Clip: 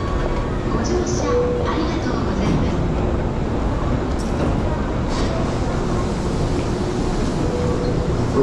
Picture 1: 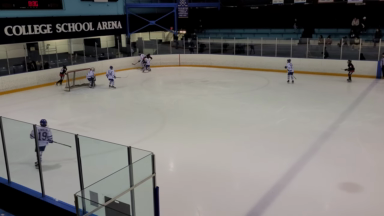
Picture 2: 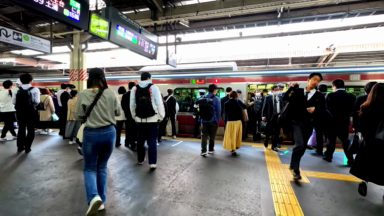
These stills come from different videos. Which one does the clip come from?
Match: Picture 2